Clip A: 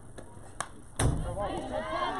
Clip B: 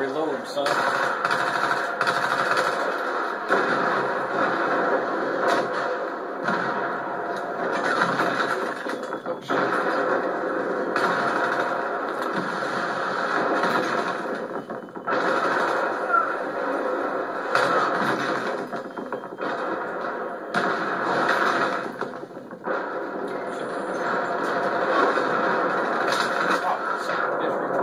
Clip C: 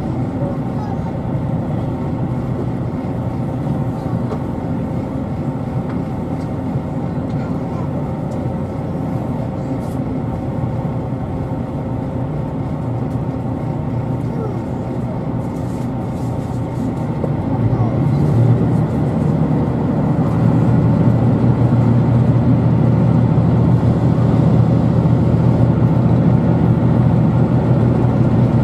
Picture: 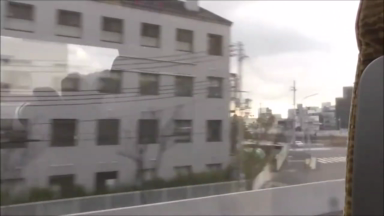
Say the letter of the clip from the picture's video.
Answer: C